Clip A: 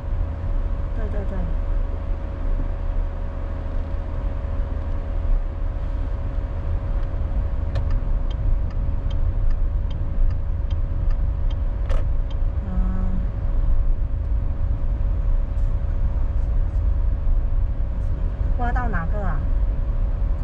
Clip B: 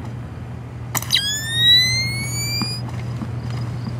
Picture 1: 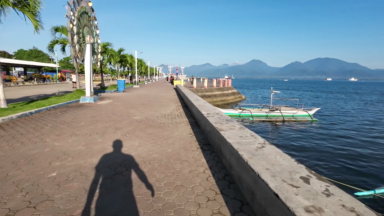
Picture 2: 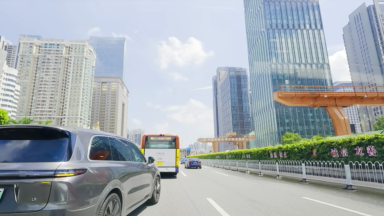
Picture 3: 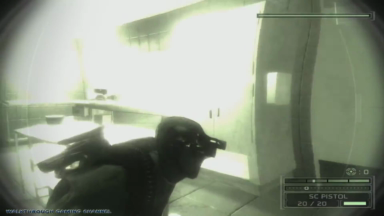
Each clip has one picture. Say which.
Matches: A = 2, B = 3